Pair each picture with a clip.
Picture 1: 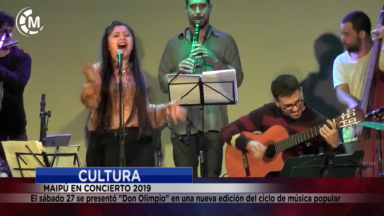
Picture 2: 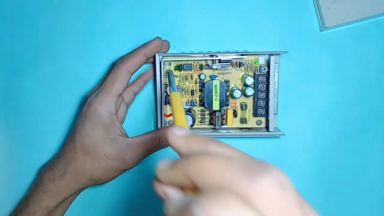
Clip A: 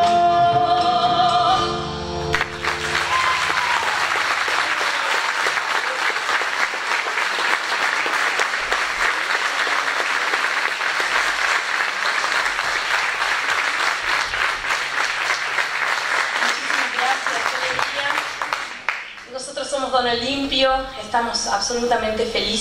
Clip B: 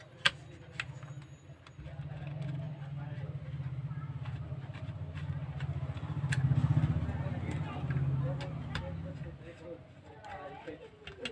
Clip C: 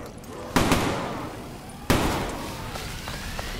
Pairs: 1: A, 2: B